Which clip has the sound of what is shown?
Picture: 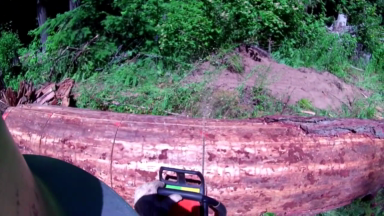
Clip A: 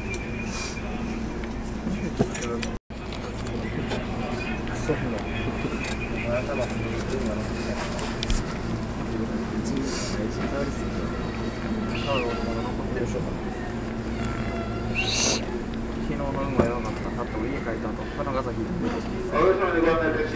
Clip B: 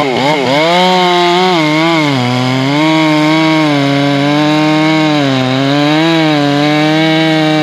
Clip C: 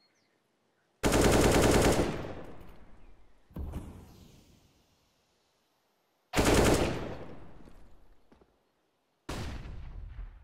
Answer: B